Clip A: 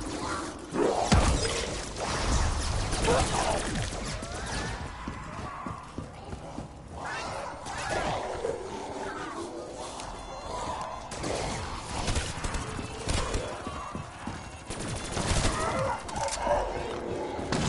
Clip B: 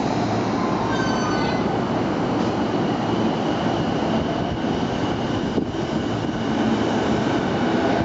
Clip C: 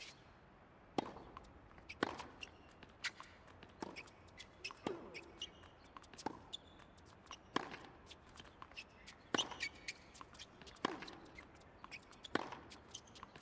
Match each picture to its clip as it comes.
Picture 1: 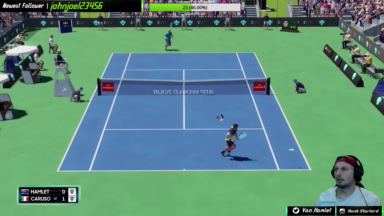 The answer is C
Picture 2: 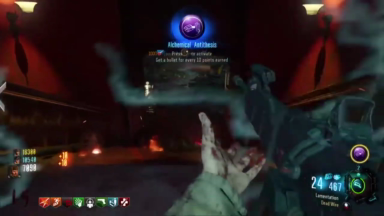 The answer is A